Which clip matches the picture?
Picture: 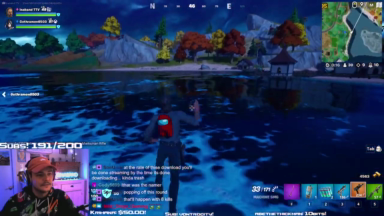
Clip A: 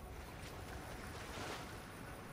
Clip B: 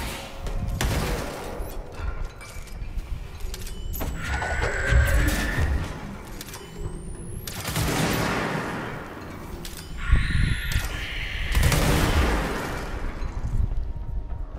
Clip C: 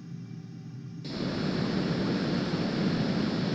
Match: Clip A